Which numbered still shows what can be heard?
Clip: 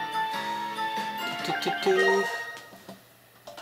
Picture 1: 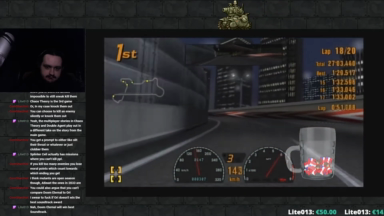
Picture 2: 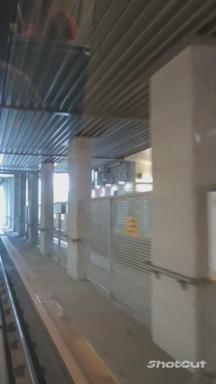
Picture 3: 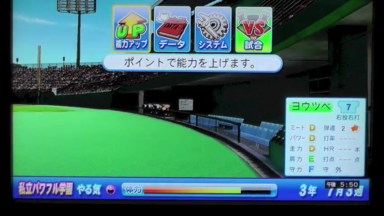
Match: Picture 3